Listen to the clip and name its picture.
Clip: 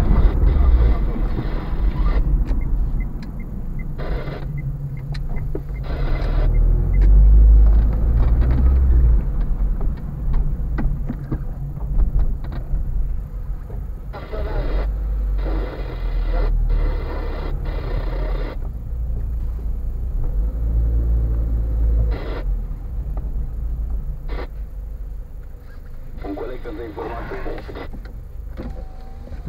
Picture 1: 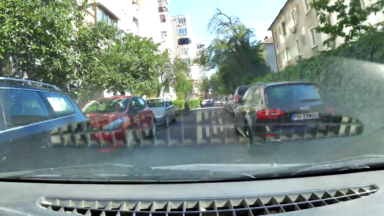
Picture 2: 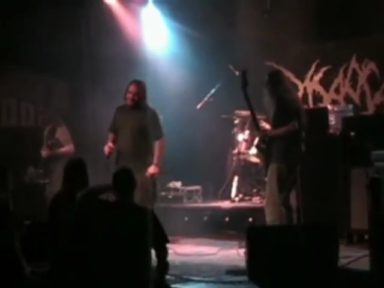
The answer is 1